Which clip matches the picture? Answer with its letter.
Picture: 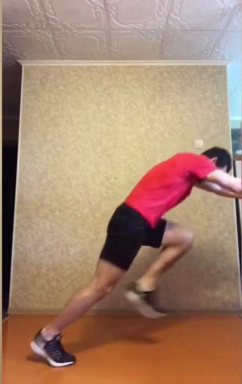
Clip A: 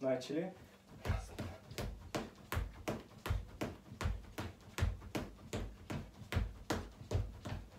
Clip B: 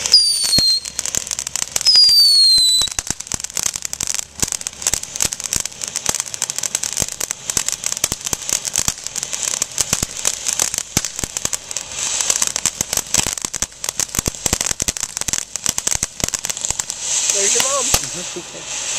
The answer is A